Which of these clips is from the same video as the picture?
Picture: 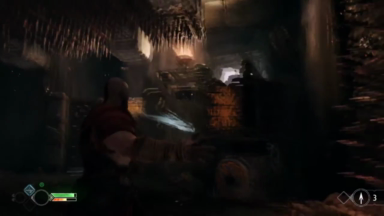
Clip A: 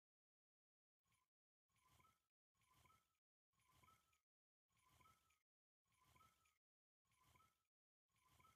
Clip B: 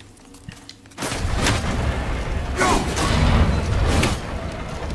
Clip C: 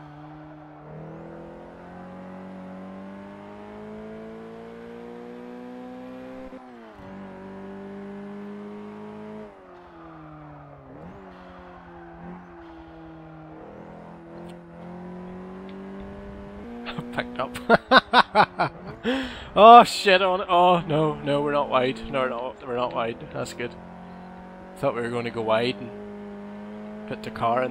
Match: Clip B